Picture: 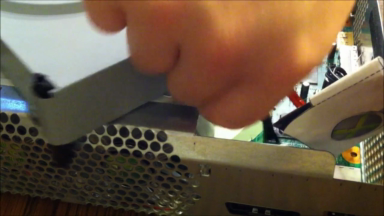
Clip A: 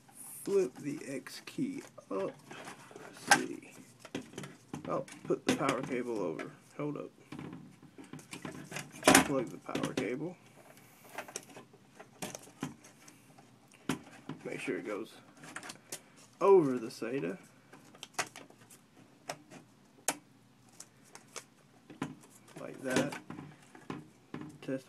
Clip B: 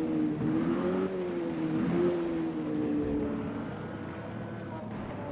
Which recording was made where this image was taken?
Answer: A